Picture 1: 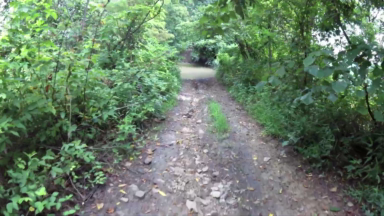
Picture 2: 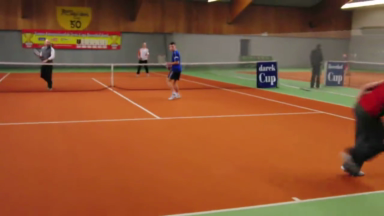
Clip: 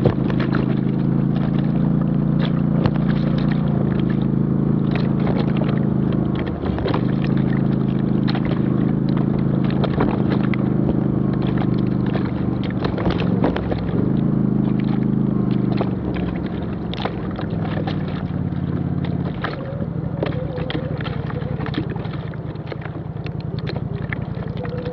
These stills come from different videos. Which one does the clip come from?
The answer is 1